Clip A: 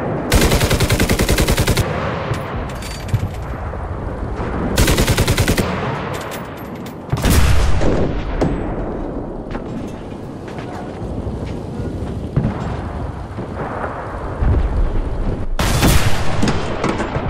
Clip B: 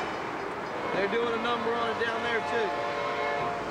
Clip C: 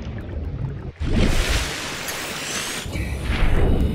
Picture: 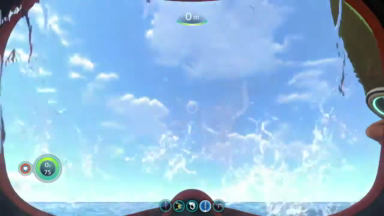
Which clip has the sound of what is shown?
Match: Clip C